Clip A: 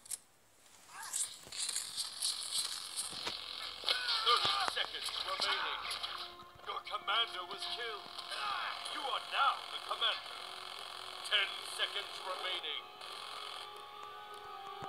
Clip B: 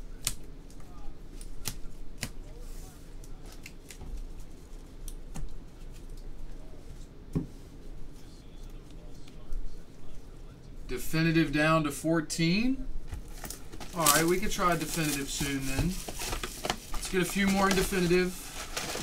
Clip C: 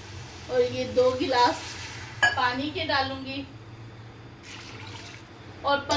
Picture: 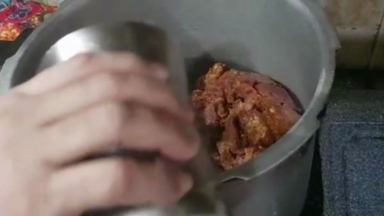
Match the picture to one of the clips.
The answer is C